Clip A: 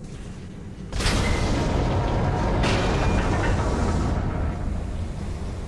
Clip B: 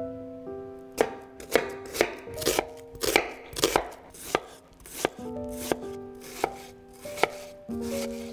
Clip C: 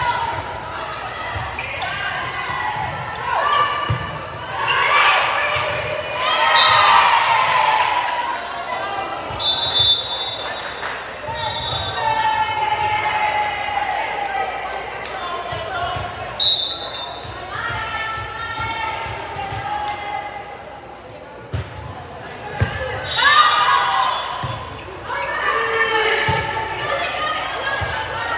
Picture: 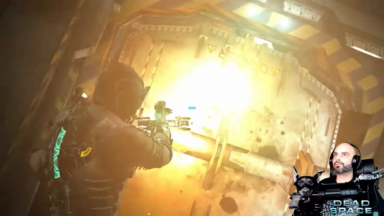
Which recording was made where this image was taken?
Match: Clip A